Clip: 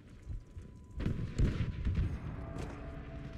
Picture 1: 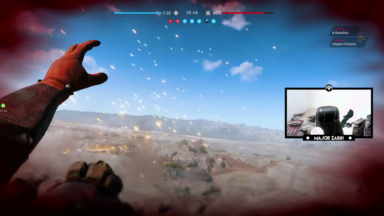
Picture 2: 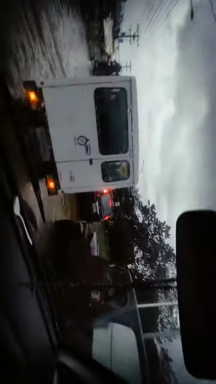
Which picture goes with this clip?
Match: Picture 1